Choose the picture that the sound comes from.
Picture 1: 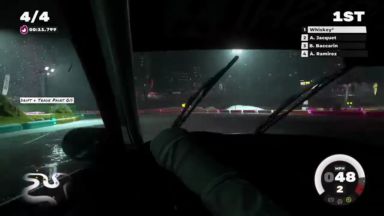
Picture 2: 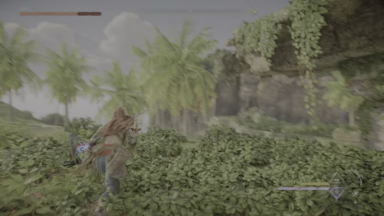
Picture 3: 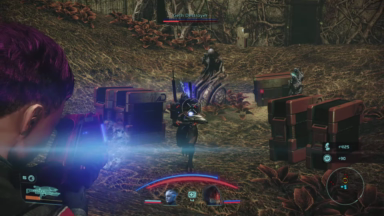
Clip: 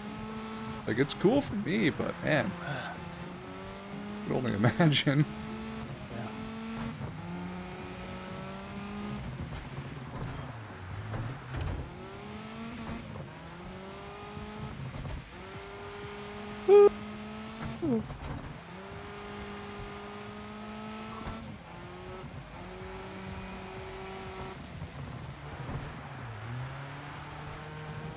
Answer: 1